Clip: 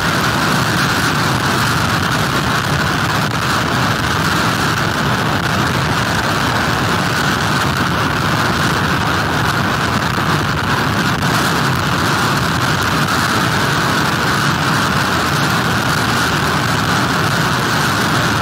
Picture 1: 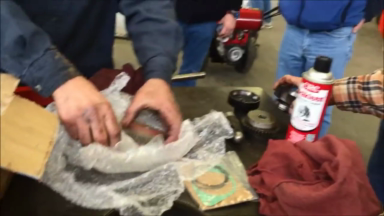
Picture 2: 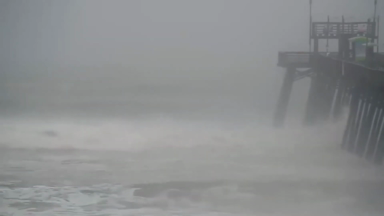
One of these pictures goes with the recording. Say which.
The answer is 2